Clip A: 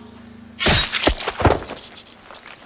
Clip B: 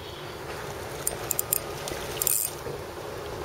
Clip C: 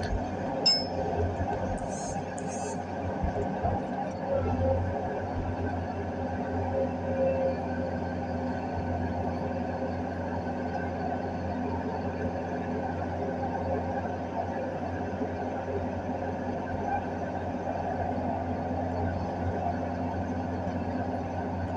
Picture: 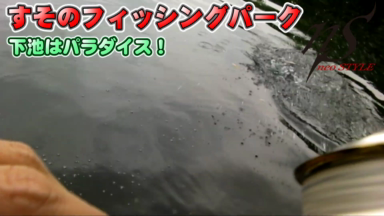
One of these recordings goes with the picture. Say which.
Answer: B